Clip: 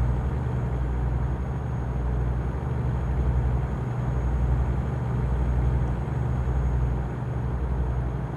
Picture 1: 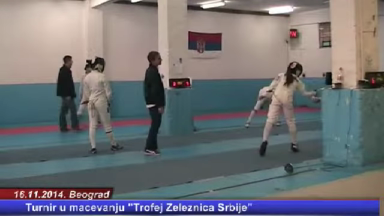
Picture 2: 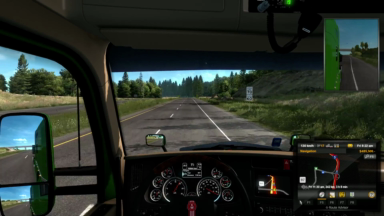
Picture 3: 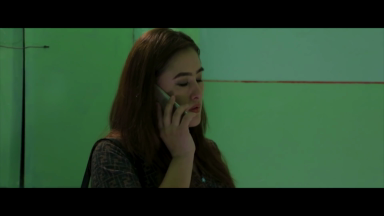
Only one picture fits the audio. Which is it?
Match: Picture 2